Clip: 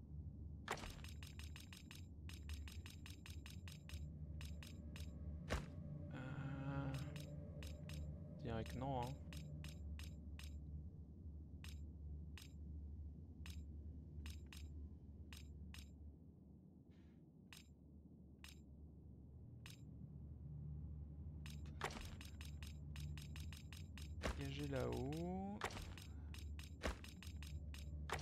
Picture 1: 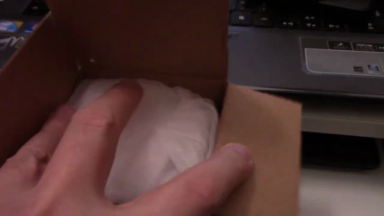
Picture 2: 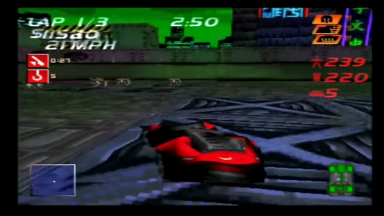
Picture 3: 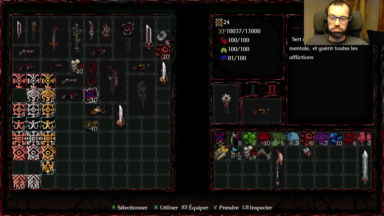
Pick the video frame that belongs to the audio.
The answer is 3